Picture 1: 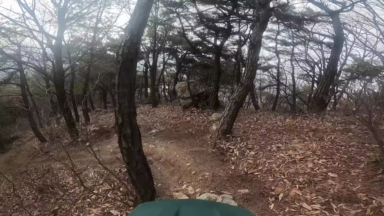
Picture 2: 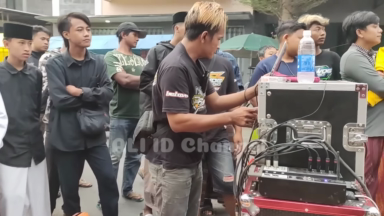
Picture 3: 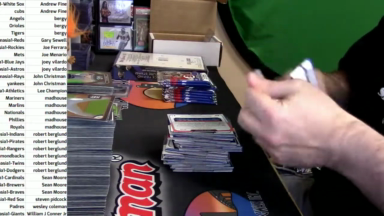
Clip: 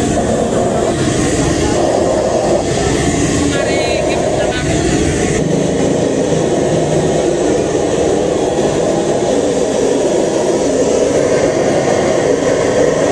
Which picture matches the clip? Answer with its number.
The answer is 2